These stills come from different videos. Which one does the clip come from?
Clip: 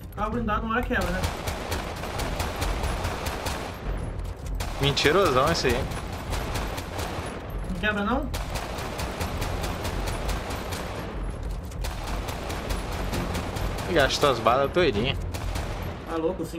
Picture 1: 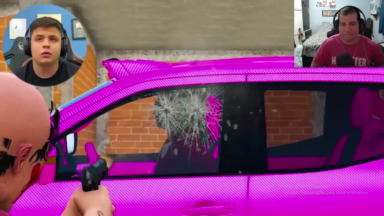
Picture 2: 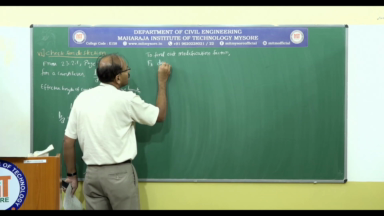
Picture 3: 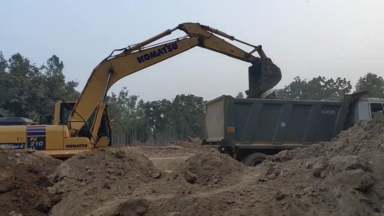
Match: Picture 1